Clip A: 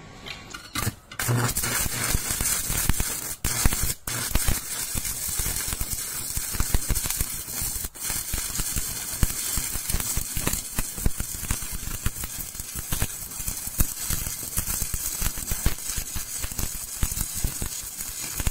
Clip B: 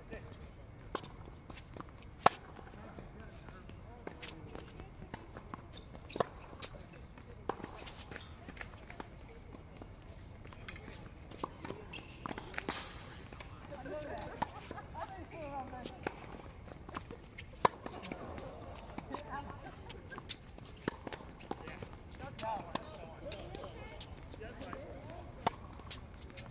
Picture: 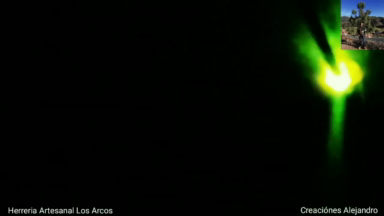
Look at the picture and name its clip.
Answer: A